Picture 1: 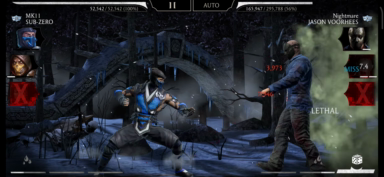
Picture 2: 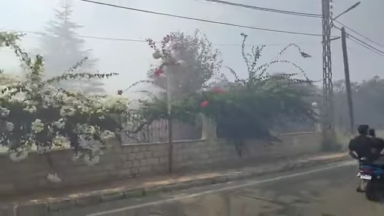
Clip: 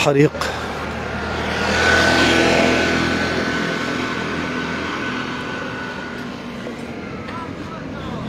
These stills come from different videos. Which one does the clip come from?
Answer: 2